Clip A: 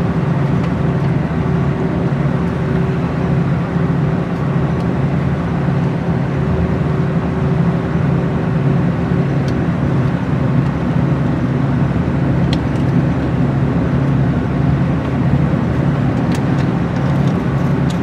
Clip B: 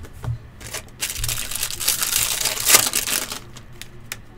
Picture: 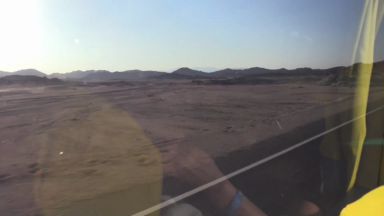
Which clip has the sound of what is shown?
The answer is A